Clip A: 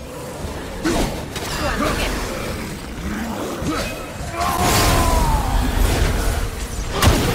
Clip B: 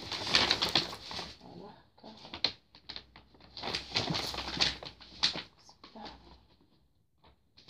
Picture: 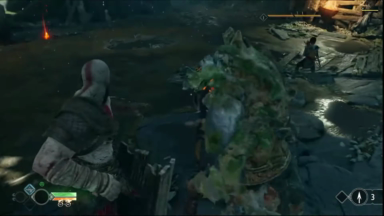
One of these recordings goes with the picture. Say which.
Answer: A